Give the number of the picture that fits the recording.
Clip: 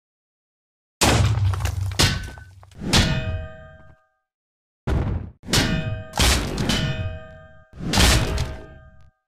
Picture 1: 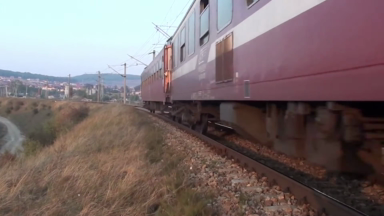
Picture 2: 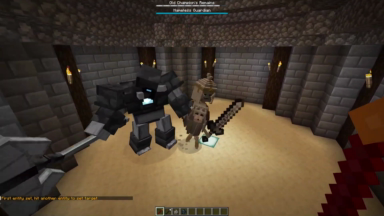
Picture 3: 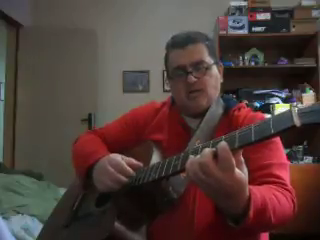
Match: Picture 2